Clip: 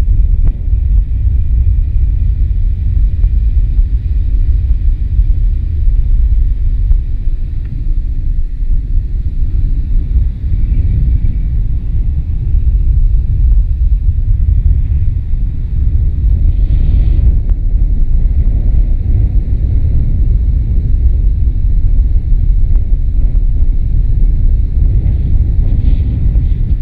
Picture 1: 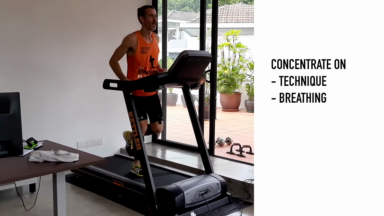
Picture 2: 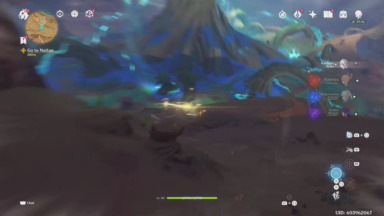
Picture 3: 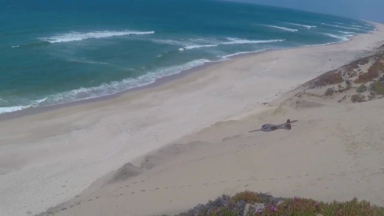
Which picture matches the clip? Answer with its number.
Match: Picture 3